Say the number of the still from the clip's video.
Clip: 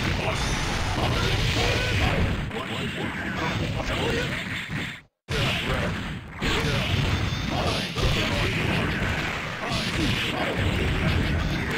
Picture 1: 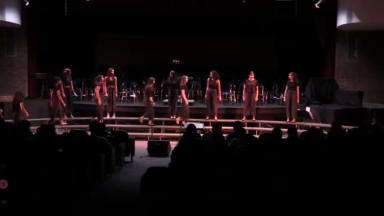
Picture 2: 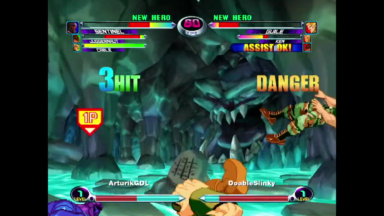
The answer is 2